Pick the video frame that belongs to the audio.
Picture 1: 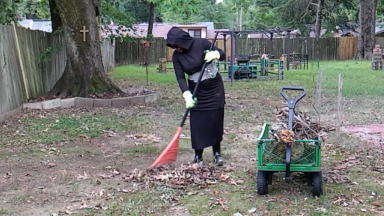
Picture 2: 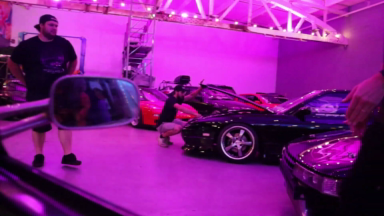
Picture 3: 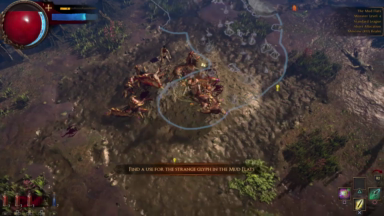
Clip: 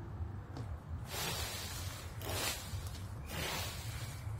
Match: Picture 1